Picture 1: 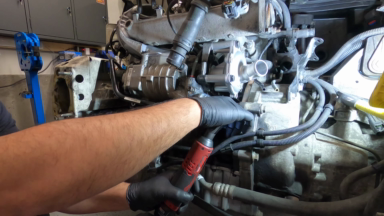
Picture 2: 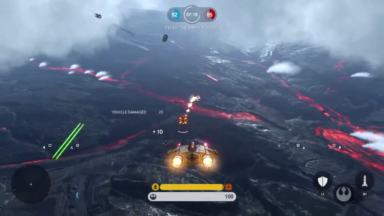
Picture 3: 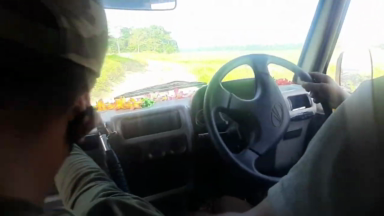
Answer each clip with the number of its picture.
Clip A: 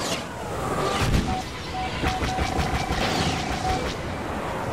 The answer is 2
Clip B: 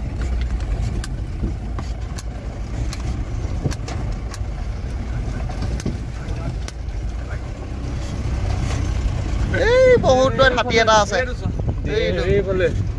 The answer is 3